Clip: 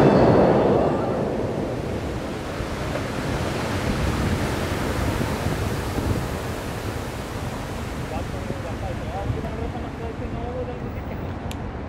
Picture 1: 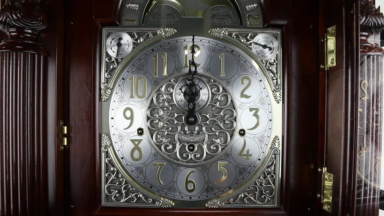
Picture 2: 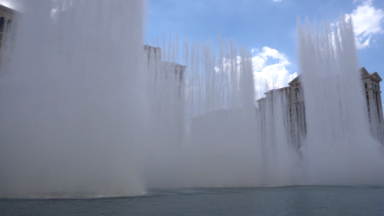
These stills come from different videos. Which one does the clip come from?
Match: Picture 2